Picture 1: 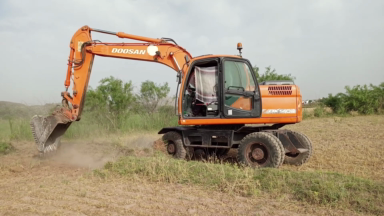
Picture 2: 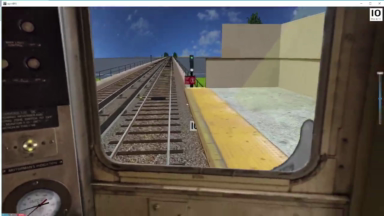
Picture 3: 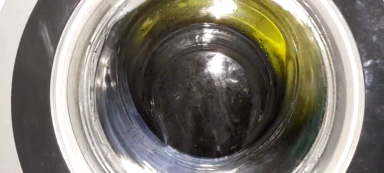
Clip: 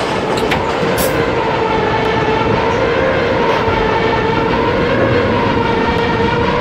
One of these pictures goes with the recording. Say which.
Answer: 2